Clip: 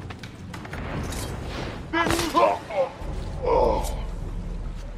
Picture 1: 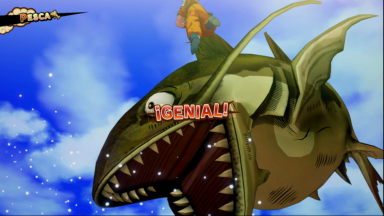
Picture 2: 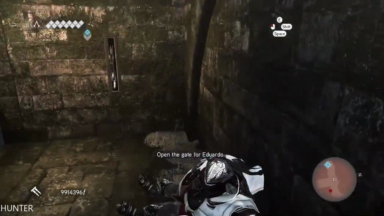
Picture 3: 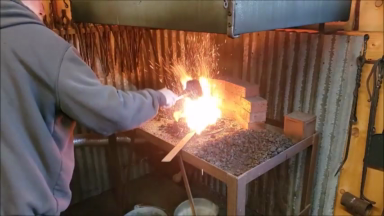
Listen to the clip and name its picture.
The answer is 2